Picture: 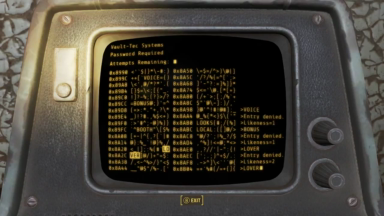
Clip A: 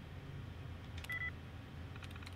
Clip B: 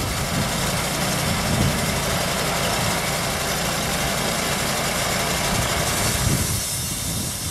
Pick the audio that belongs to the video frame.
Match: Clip A